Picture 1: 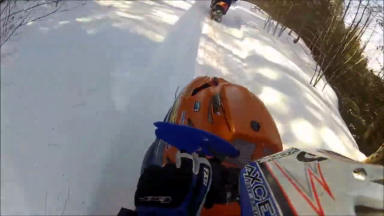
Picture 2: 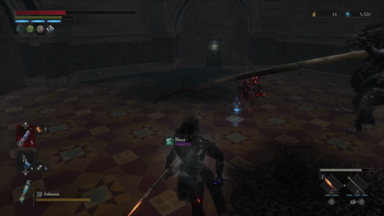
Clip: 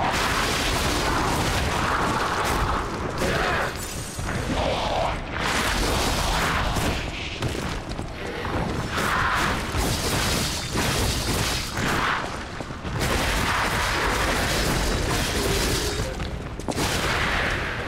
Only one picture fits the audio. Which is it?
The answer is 2